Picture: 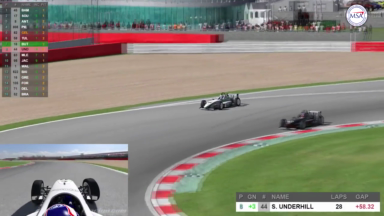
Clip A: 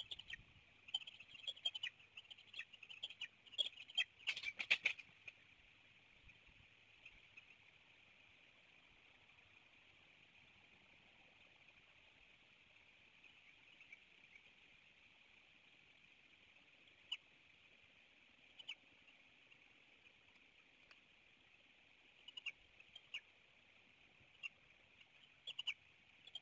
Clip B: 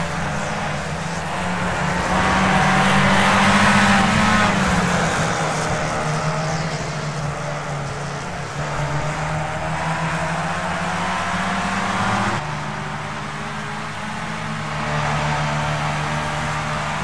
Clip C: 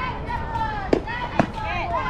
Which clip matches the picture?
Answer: B